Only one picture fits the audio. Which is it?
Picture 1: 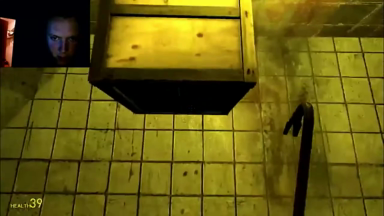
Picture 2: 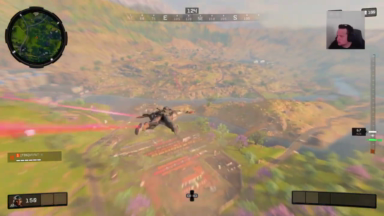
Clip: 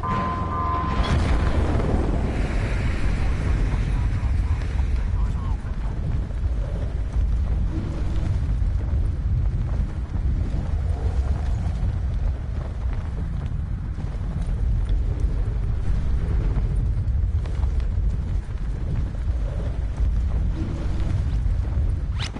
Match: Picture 2